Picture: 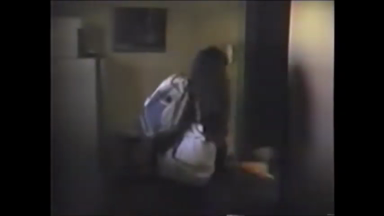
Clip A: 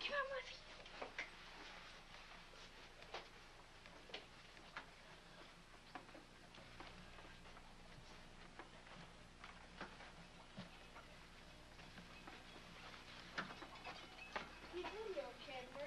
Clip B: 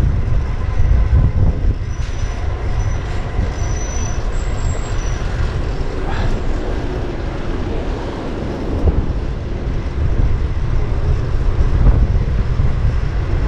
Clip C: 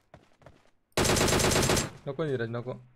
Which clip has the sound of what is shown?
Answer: A